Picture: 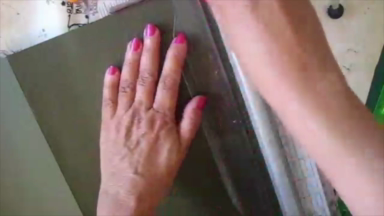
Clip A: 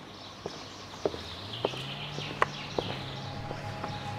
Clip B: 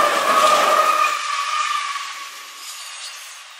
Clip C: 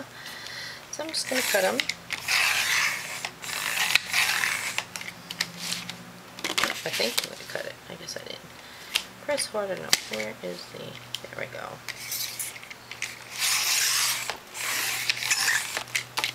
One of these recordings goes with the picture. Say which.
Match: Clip C